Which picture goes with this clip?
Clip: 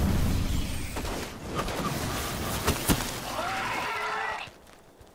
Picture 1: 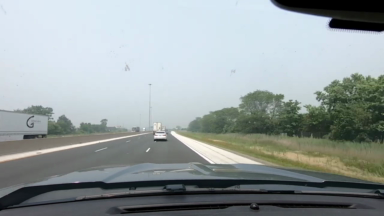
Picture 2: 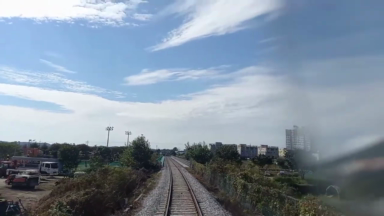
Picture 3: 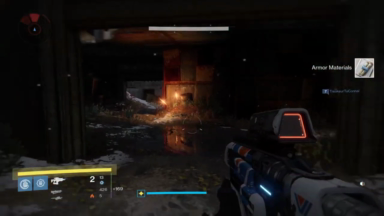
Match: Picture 3